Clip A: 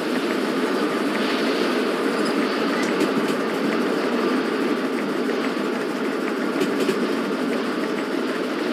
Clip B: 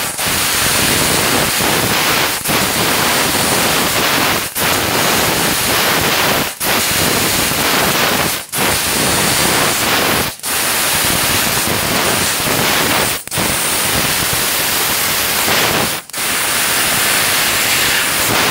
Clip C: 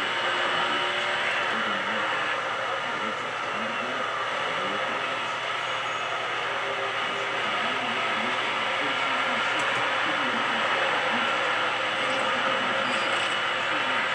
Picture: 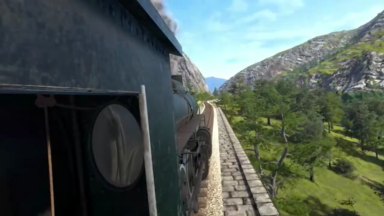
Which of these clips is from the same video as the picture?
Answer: A